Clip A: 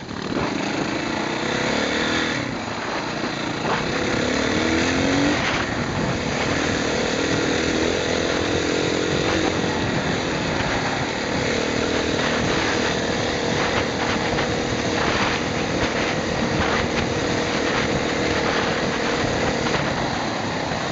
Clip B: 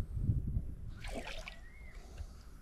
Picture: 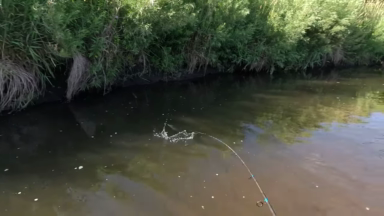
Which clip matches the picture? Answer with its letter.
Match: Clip B